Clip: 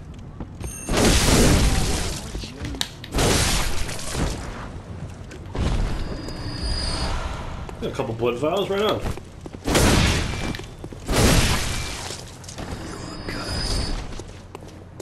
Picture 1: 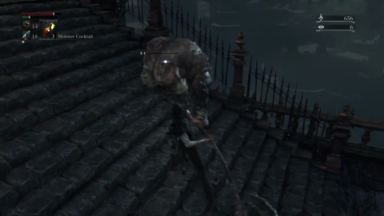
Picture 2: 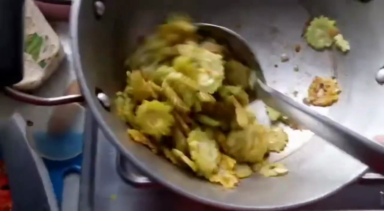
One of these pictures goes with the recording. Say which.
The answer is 1